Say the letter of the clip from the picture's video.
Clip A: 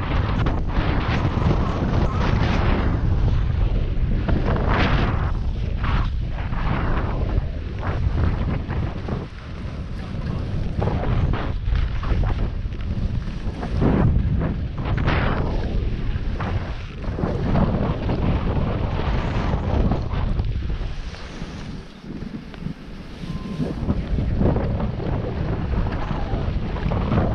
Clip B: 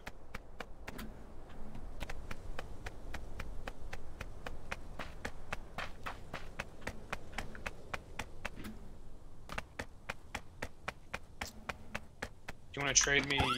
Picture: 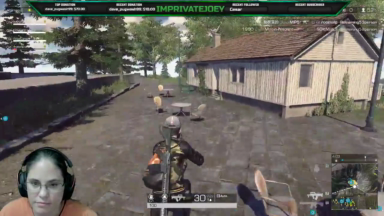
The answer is B